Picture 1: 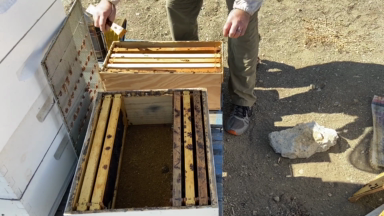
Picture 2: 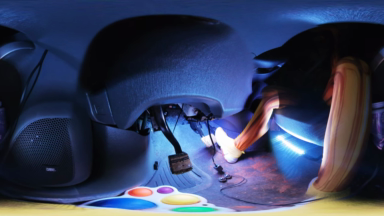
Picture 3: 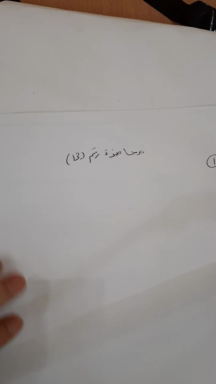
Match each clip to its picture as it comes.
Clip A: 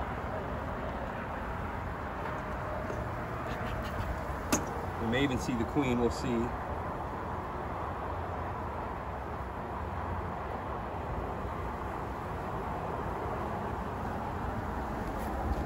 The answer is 1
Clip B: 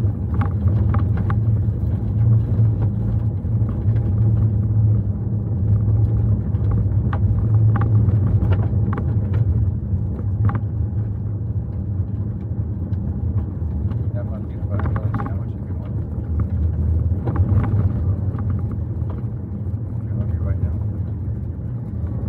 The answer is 2